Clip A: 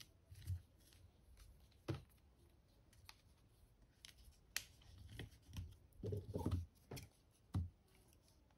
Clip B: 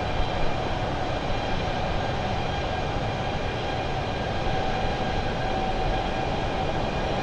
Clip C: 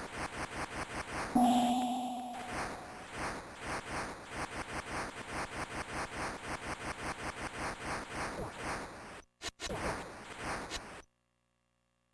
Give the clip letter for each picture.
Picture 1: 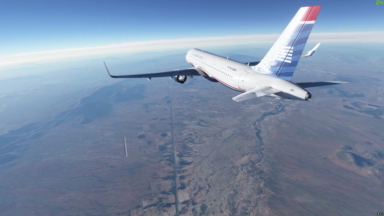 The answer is B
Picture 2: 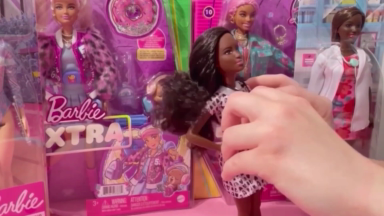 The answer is A